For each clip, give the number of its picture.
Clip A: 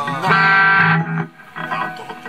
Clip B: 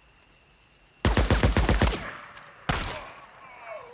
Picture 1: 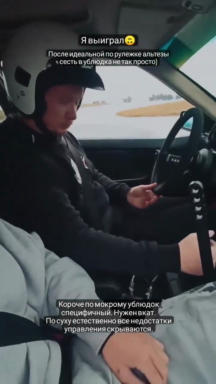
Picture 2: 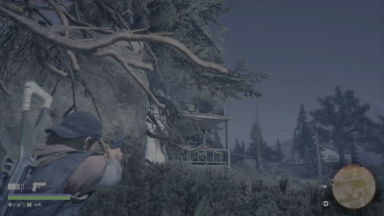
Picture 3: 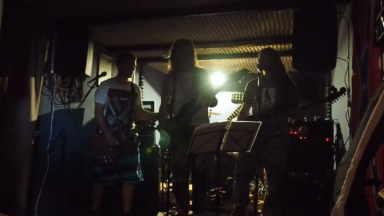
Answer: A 3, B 2